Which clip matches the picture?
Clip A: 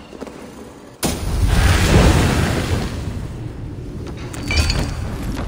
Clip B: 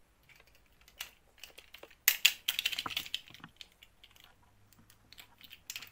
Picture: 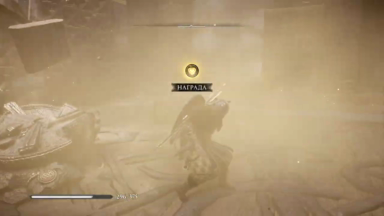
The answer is A